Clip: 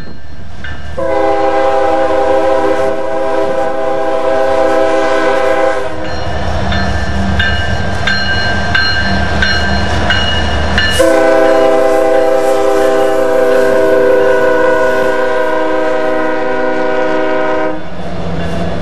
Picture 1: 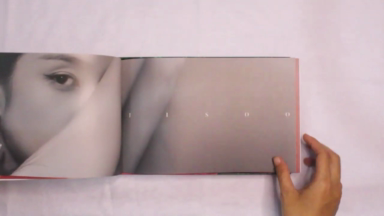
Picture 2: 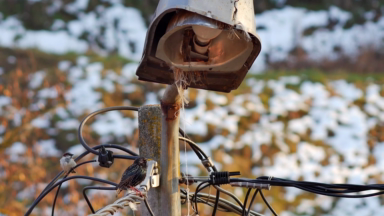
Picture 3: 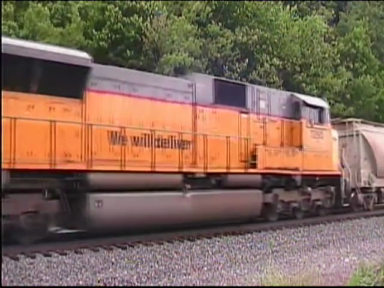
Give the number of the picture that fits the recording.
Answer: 3